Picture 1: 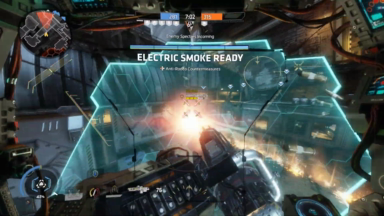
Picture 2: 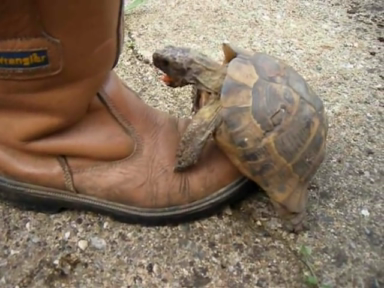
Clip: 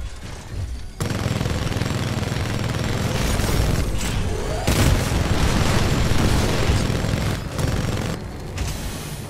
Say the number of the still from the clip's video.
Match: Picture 1